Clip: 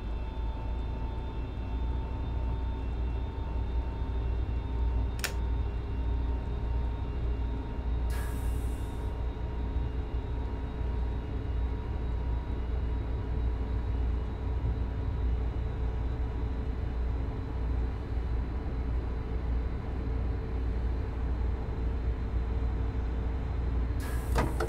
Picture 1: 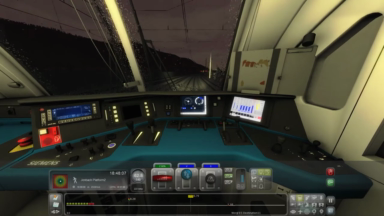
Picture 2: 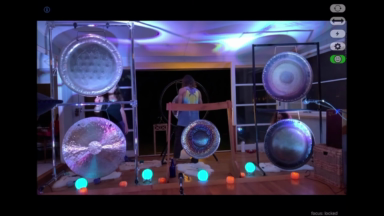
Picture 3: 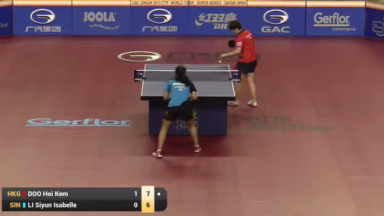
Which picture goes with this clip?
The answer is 1